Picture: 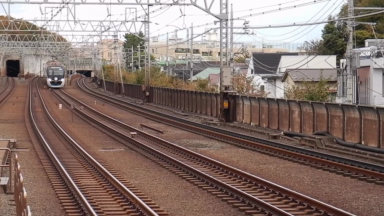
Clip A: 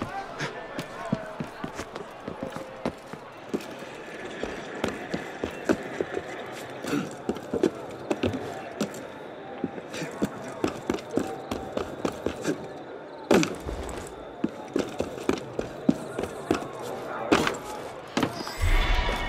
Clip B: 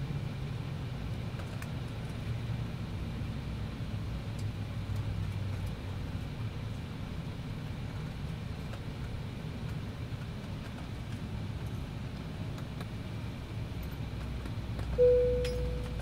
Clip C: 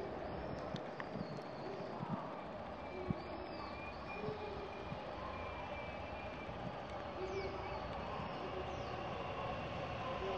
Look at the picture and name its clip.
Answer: C